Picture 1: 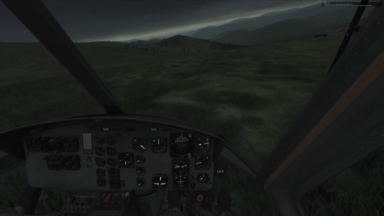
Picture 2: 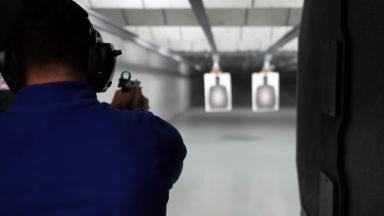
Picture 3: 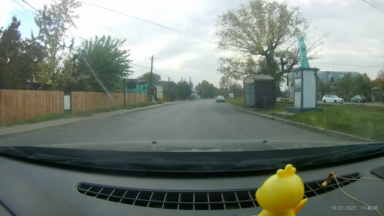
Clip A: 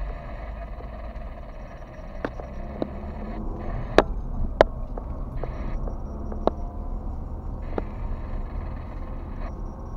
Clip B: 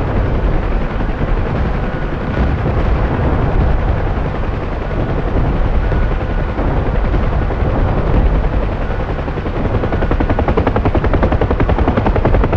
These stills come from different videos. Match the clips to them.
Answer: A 3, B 1